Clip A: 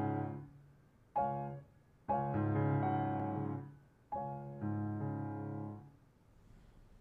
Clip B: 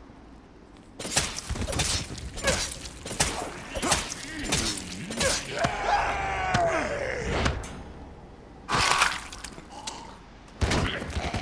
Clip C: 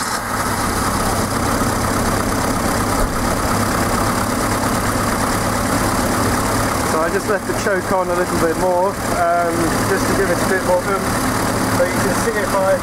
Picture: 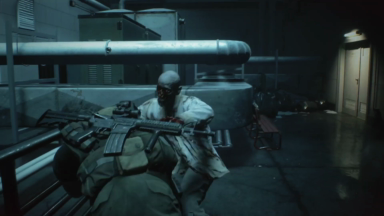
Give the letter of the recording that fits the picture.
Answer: B